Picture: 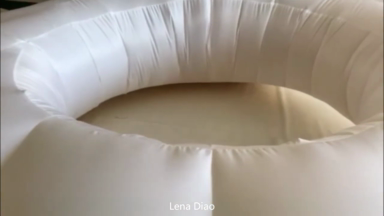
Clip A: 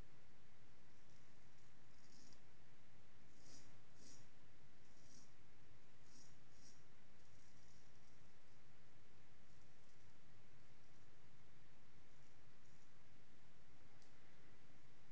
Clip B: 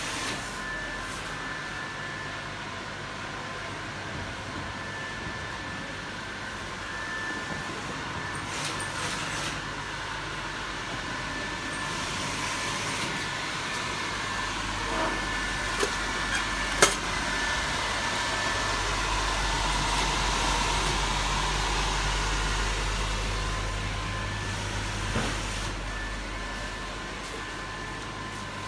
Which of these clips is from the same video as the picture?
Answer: B